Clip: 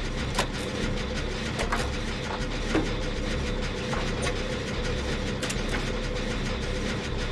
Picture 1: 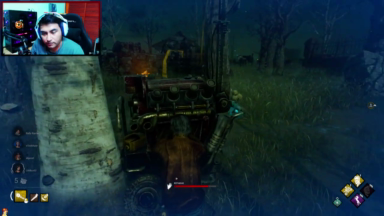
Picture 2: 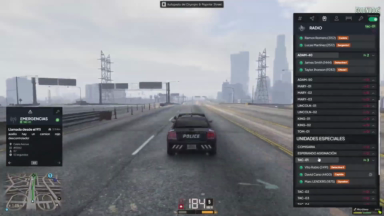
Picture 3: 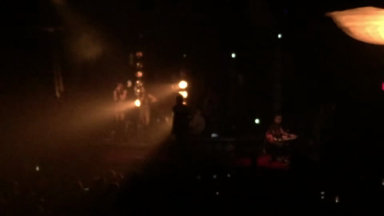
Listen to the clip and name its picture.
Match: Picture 1